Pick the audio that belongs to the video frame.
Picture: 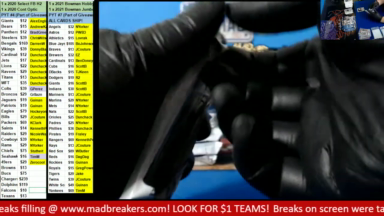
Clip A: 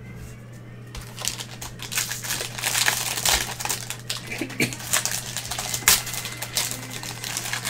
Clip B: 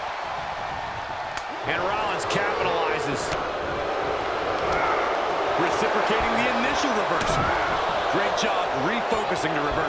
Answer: A